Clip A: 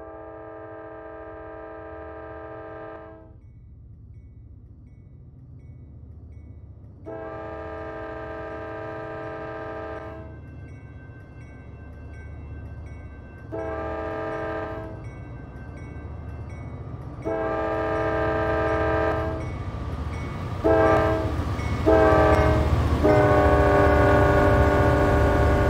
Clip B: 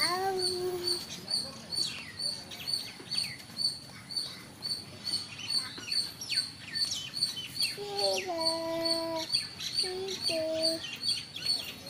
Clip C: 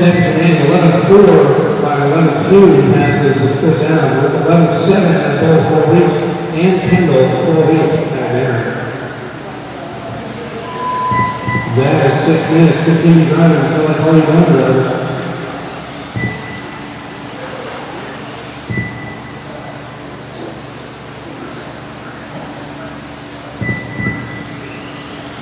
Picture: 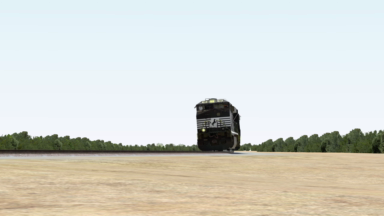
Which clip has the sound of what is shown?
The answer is A